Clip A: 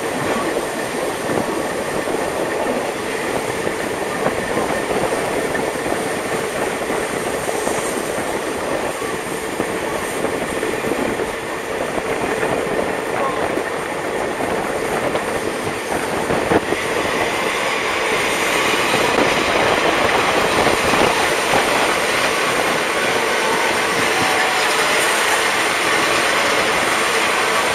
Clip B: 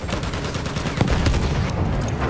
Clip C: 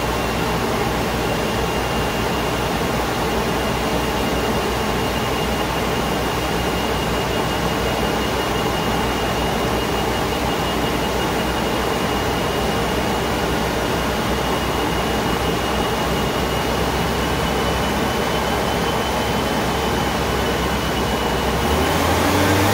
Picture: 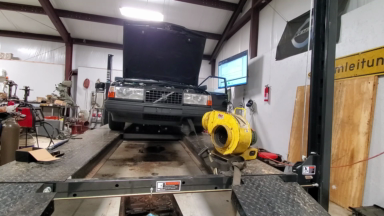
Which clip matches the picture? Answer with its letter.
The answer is C